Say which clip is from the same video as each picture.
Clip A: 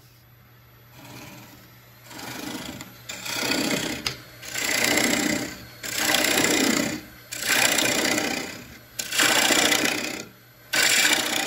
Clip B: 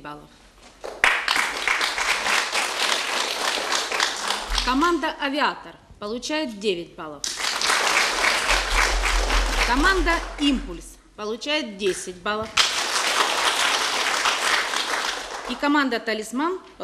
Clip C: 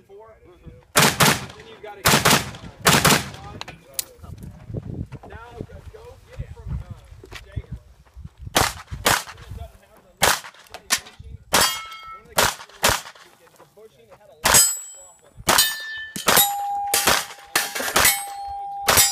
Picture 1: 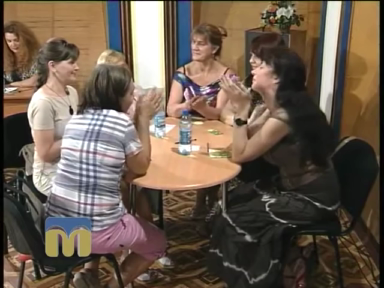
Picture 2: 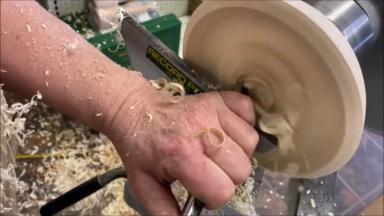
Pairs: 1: B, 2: A